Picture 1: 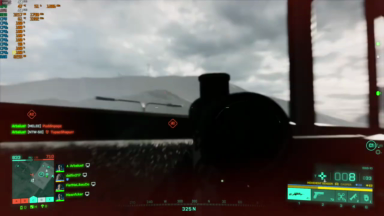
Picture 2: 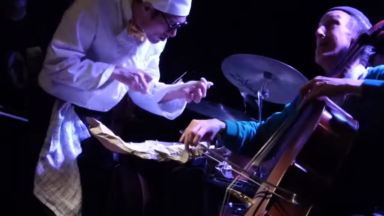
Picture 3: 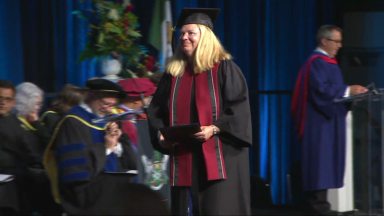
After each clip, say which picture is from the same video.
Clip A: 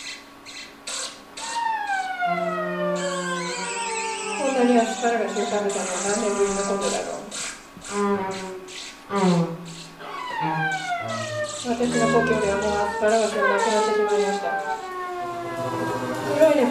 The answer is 2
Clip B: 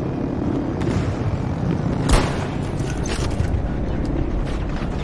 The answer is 1